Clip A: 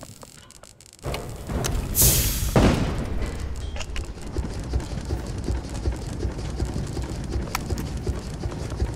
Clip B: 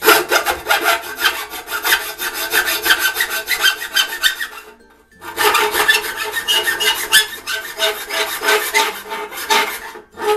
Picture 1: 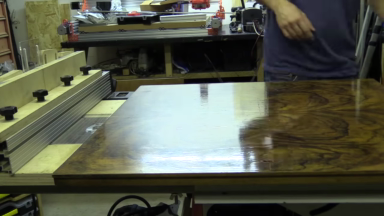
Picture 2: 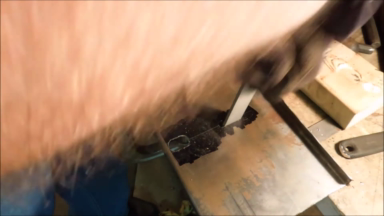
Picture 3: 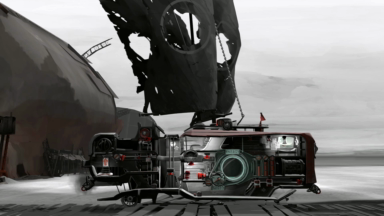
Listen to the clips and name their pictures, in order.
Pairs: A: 3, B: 2